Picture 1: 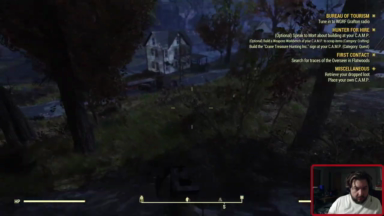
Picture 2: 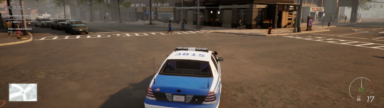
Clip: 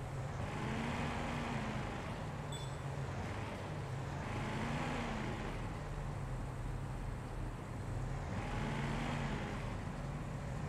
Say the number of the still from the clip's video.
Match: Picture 2